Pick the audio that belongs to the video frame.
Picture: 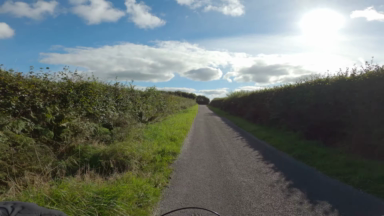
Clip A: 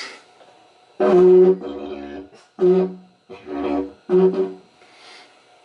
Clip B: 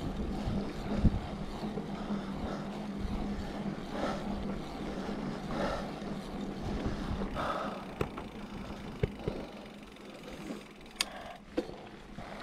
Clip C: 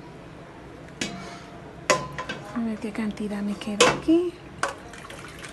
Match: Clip B